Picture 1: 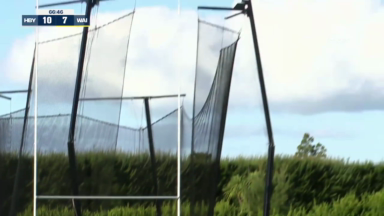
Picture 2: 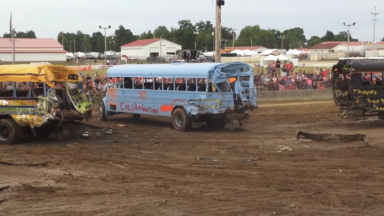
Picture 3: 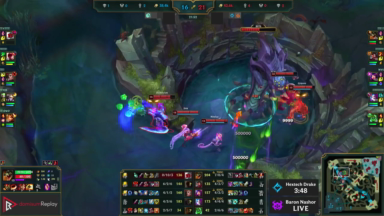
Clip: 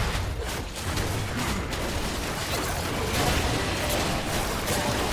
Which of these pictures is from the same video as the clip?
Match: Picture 3